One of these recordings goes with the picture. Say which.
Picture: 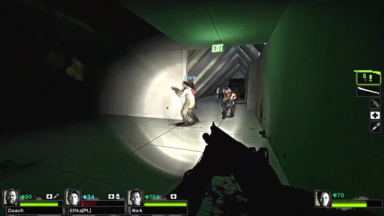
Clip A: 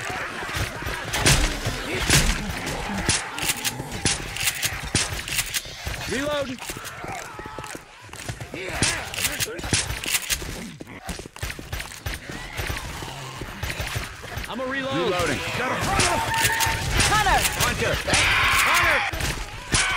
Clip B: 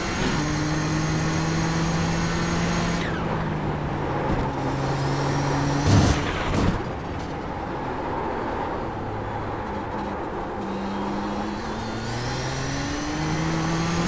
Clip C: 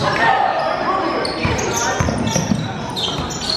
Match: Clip A